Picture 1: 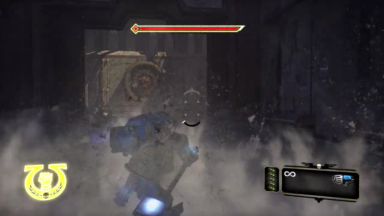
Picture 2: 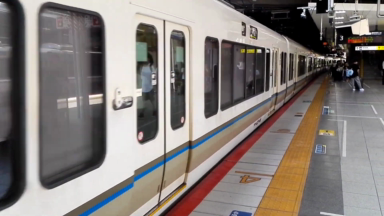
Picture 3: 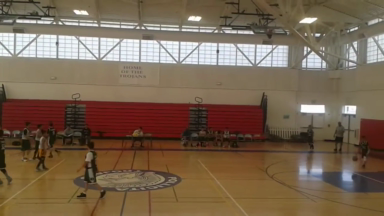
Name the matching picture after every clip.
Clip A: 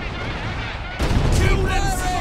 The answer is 1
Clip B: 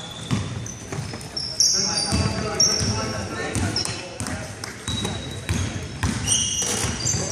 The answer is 3